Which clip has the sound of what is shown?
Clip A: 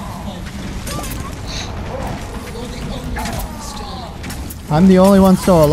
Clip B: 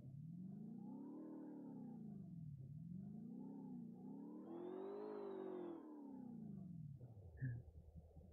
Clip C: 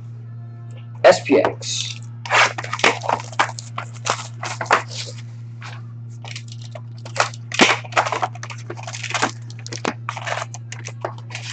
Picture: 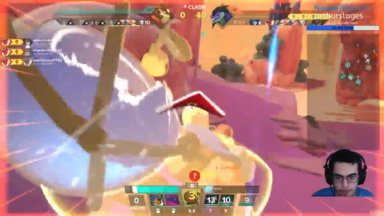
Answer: A